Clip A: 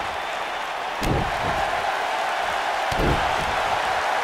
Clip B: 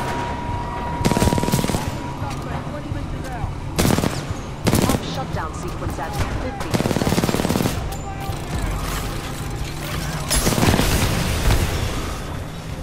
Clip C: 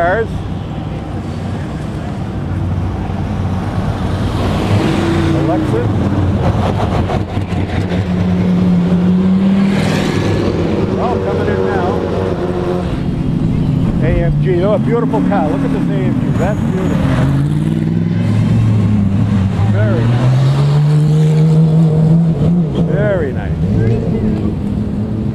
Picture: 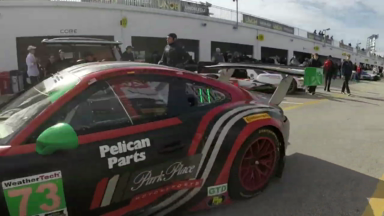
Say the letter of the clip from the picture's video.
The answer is C